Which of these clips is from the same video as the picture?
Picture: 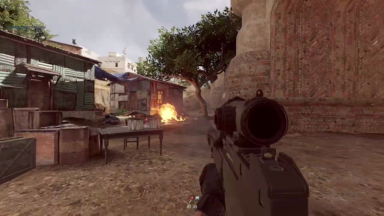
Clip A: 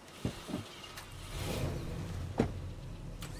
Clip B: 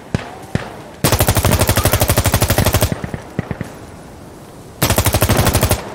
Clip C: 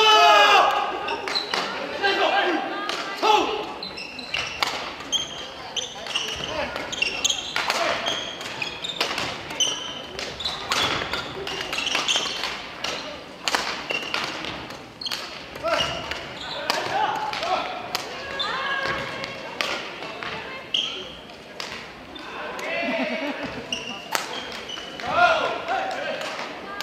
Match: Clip B